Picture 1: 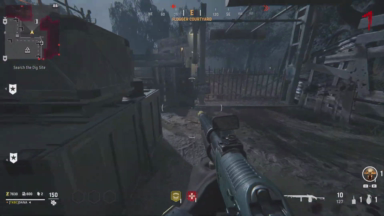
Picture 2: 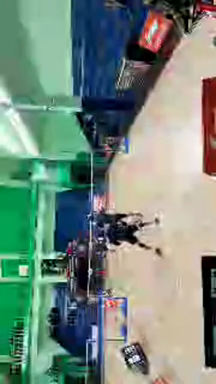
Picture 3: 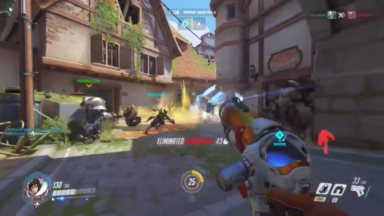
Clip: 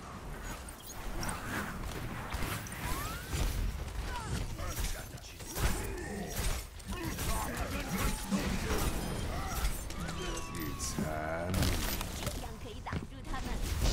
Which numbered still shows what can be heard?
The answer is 3